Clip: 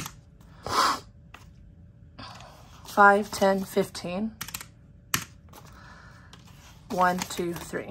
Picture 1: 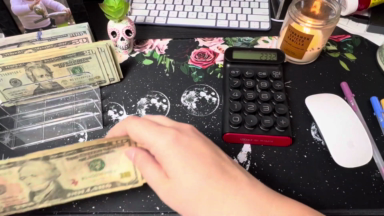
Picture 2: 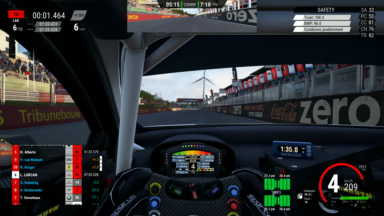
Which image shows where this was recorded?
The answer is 1